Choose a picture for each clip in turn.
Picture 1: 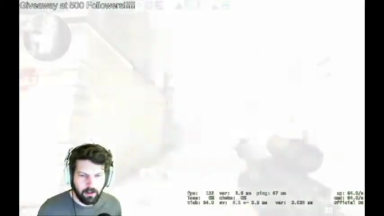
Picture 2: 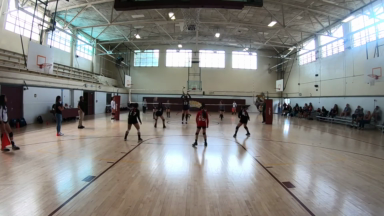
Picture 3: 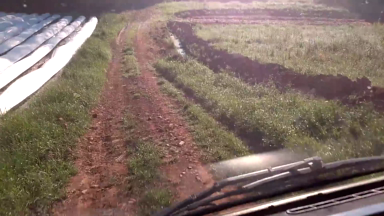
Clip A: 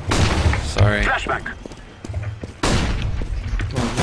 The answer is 1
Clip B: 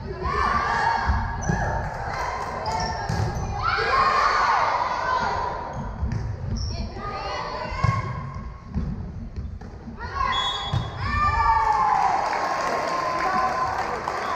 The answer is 2